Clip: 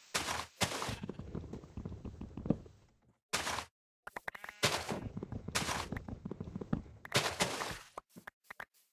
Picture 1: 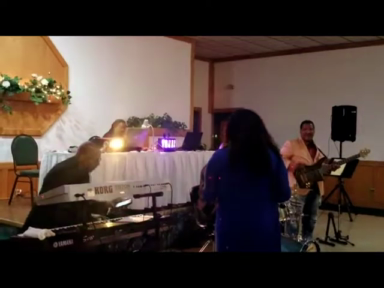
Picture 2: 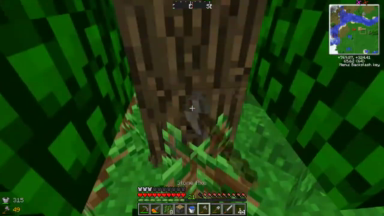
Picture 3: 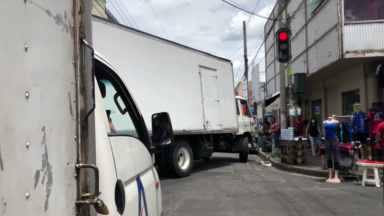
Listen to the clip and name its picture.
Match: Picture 2